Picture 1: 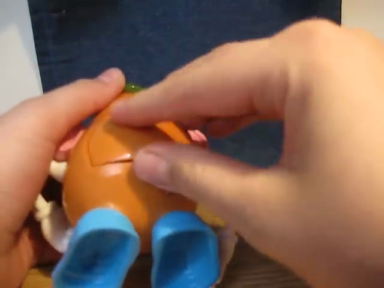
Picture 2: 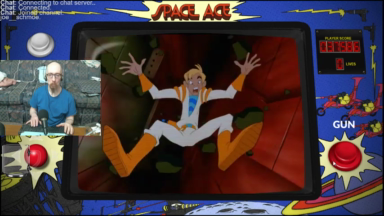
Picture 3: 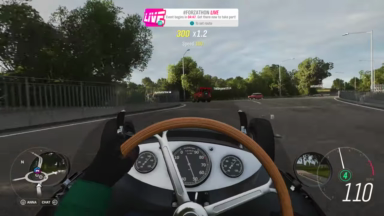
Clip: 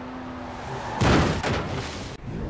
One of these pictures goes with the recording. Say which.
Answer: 3